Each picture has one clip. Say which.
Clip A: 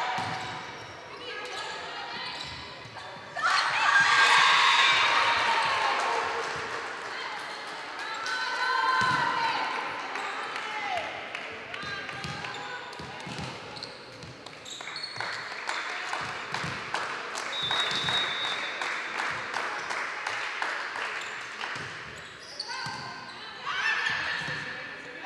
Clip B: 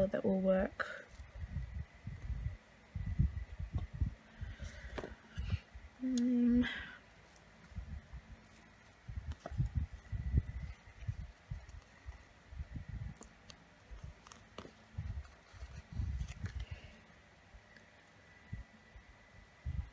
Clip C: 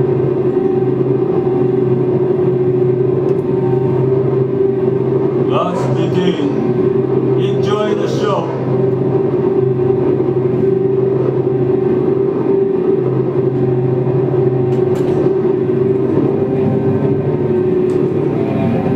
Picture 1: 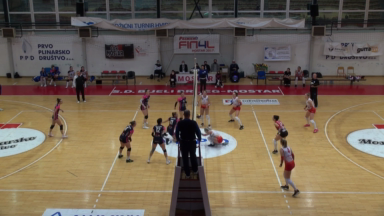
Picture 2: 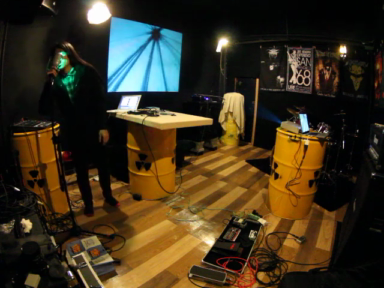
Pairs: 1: A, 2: C